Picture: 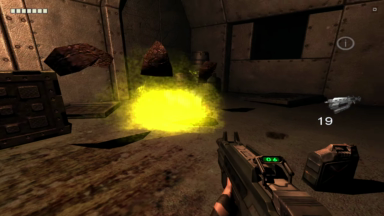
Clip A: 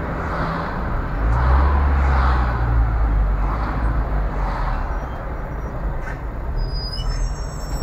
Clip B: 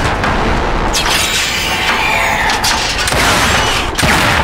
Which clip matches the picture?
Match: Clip B